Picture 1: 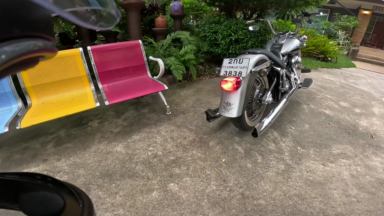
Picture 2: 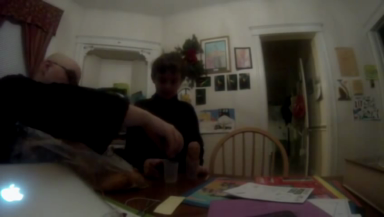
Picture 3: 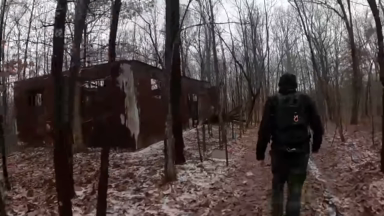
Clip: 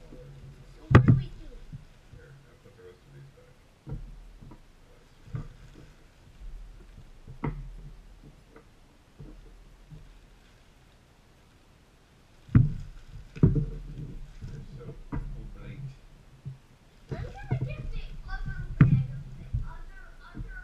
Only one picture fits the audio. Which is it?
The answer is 2